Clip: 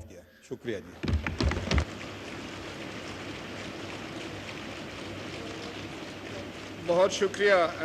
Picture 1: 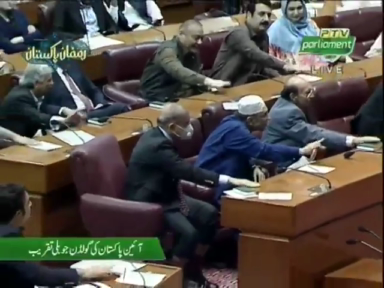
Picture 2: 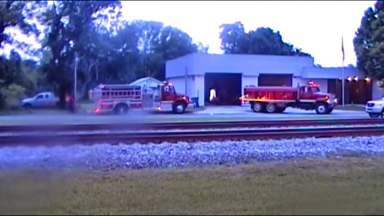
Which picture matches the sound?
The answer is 1